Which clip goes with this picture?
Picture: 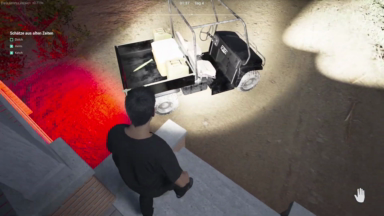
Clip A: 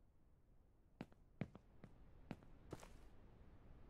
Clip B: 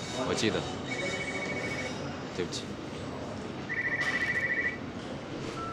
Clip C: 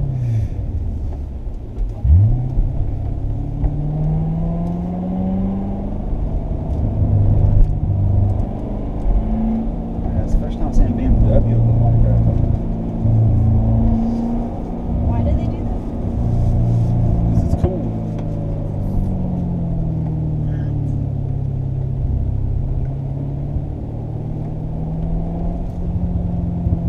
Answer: A